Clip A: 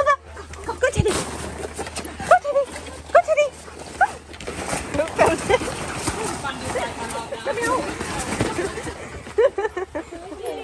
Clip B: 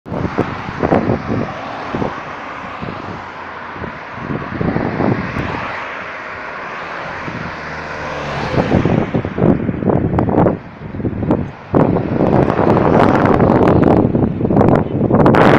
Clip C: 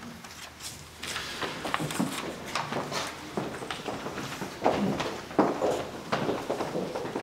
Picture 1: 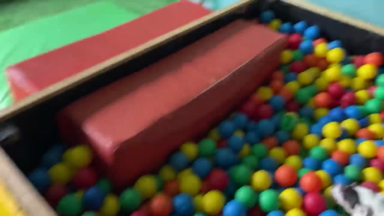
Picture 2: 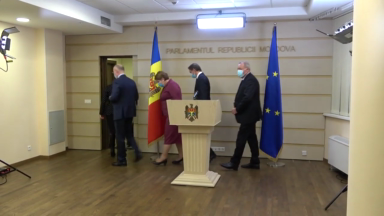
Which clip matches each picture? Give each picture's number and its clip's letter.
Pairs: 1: A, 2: C